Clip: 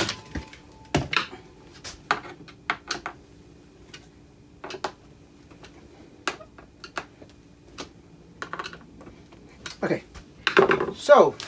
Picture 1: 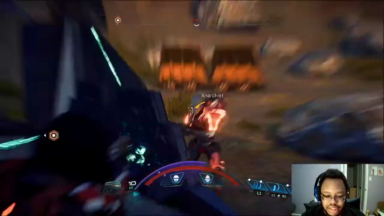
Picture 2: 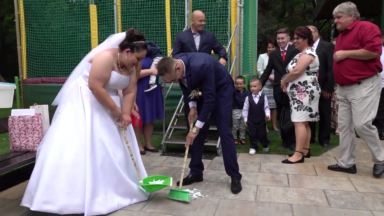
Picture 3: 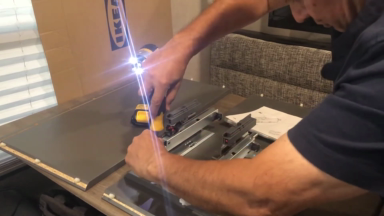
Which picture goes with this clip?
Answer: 3